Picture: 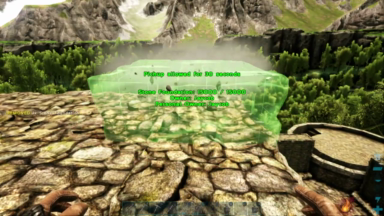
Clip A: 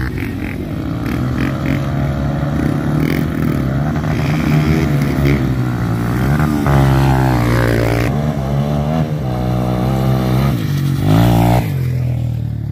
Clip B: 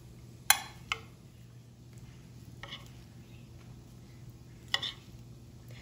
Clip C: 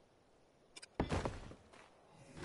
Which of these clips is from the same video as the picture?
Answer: C